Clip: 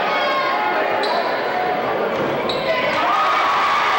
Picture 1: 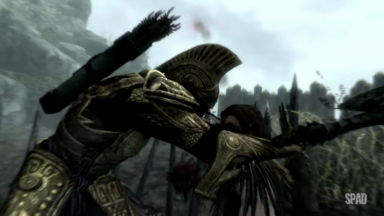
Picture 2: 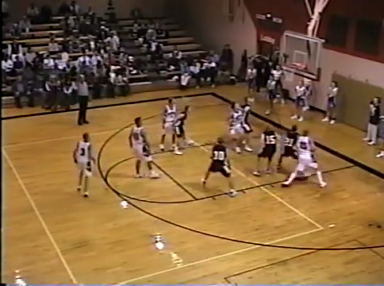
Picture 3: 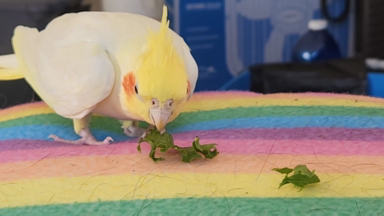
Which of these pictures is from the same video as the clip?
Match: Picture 2